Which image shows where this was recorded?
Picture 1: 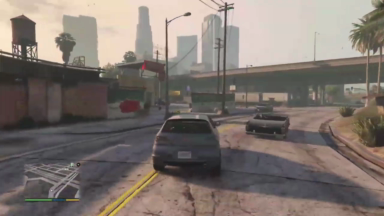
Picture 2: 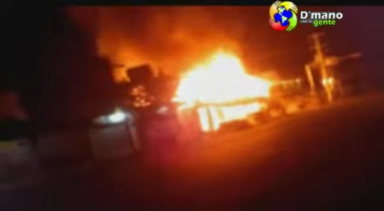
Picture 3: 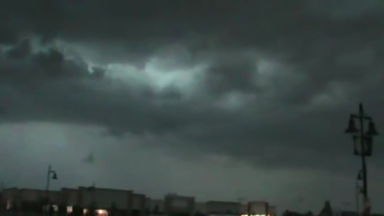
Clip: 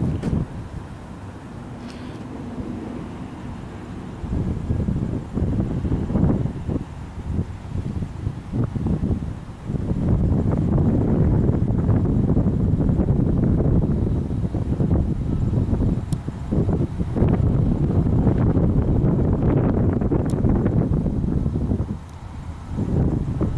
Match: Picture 3